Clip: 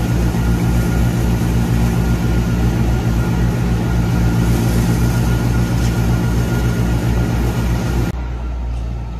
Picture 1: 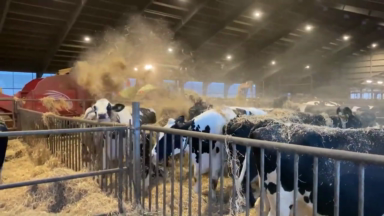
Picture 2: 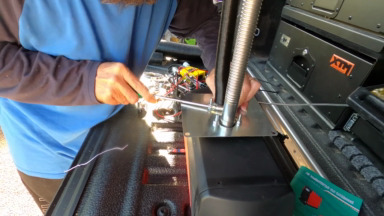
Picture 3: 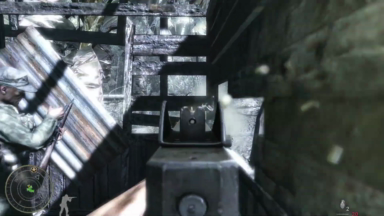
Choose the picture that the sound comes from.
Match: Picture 1